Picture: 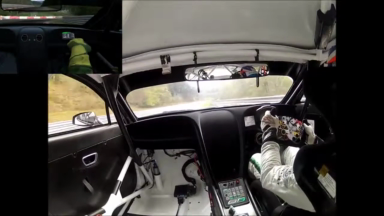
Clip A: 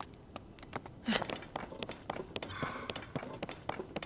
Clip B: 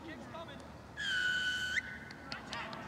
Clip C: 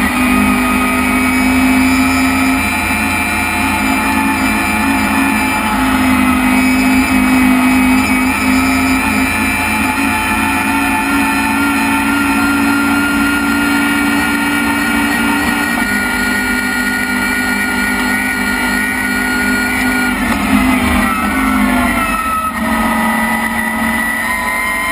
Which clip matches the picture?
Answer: C